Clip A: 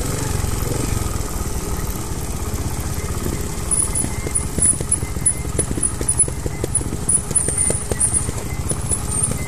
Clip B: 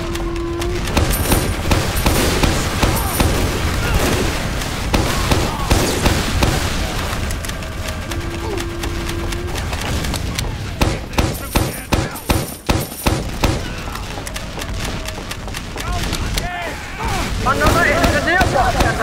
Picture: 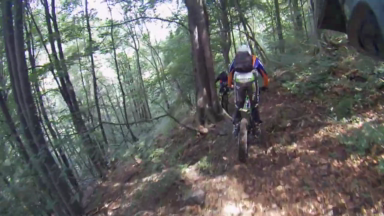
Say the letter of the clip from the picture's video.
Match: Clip A